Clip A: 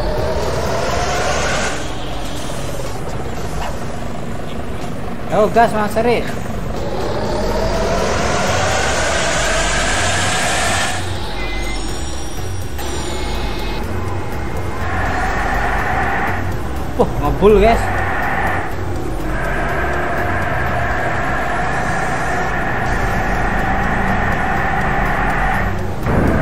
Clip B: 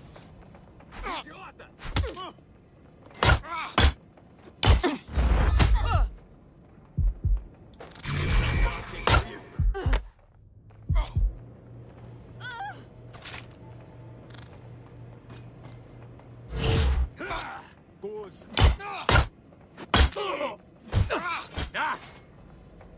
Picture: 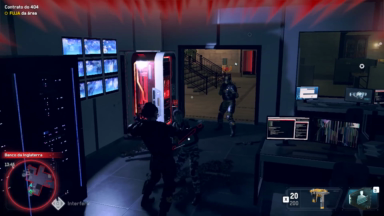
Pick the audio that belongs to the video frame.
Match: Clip B